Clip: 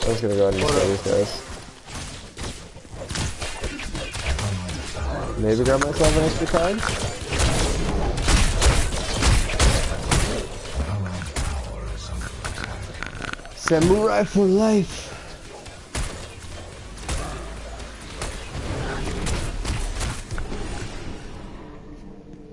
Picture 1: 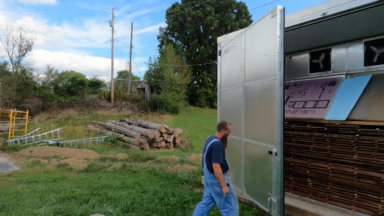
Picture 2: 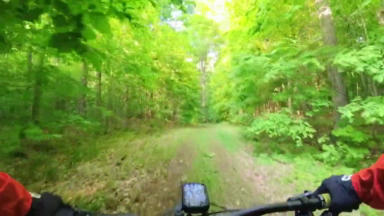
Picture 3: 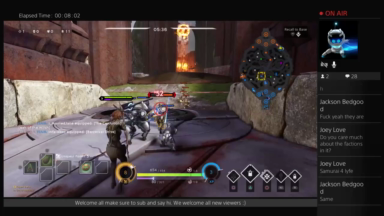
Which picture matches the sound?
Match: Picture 3